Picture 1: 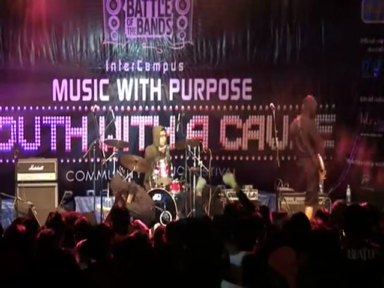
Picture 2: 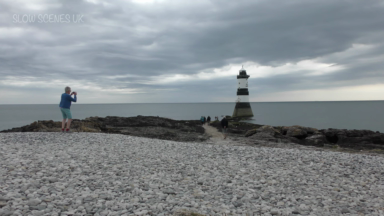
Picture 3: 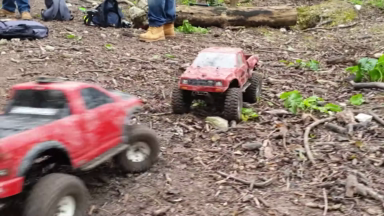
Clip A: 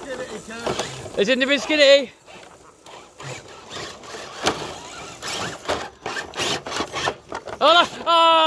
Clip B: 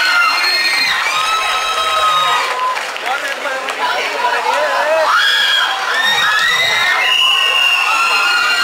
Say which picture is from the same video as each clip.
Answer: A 3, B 1